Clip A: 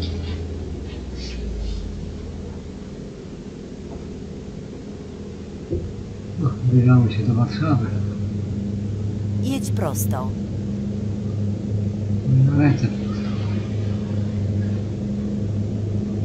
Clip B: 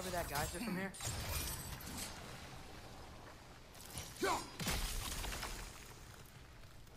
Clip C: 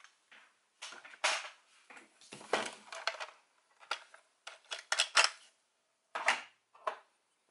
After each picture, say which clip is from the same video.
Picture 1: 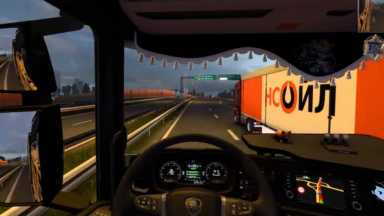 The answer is A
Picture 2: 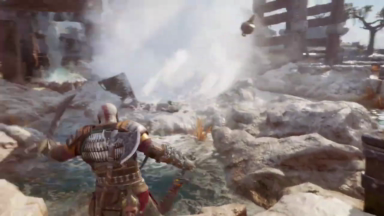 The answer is B